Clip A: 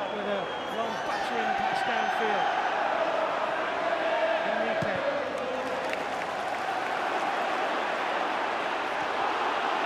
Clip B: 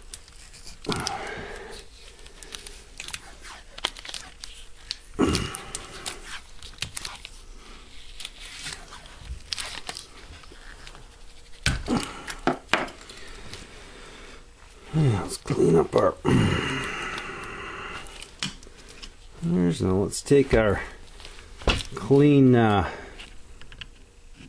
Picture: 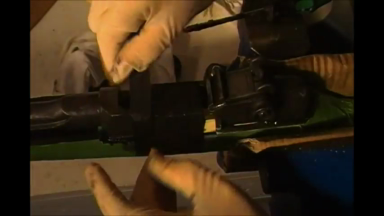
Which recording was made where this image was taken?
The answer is B